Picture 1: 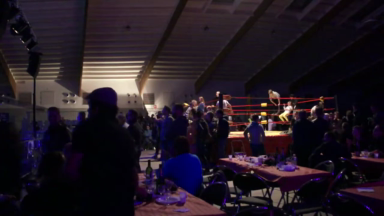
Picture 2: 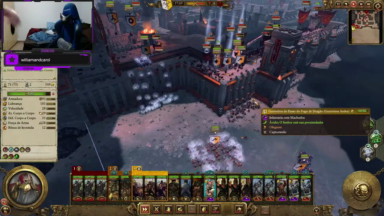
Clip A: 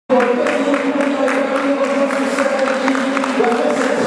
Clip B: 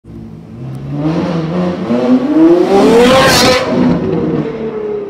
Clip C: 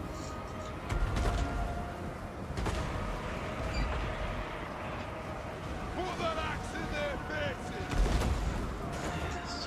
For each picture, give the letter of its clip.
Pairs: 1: A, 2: C